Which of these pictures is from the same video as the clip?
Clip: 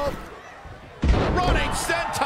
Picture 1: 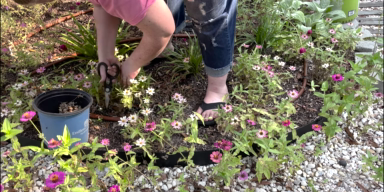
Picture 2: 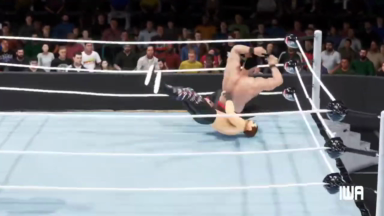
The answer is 2